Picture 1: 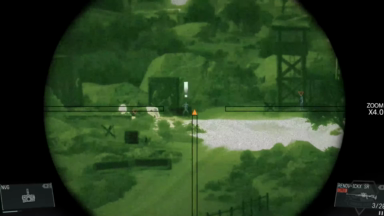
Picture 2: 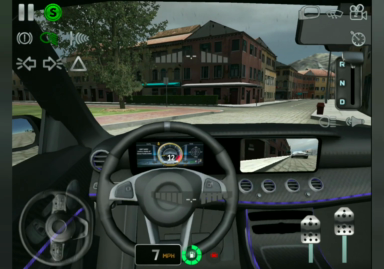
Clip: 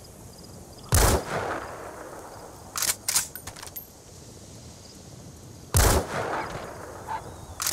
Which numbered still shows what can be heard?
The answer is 1